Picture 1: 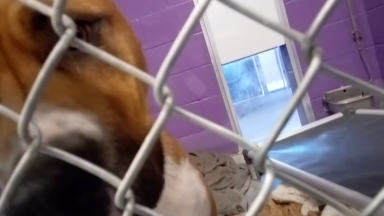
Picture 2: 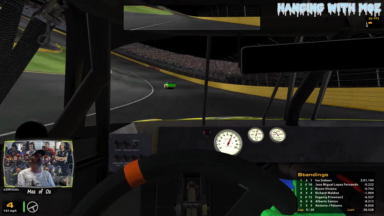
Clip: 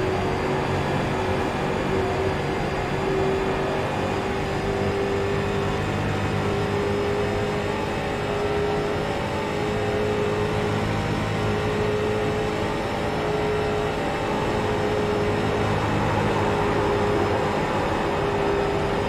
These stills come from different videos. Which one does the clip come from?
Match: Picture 2